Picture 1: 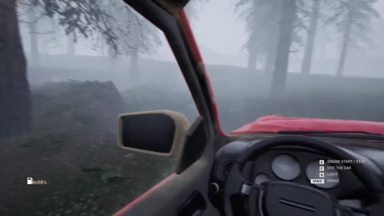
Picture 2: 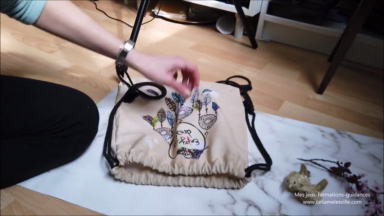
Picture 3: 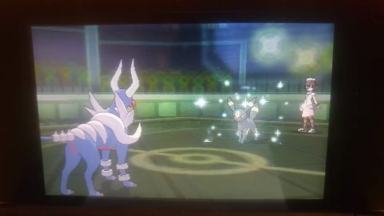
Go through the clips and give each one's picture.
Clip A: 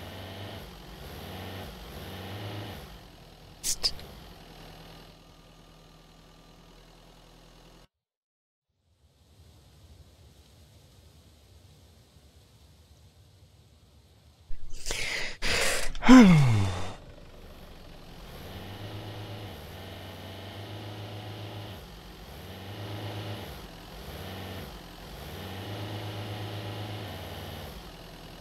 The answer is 1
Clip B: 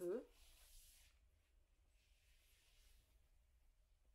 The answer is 2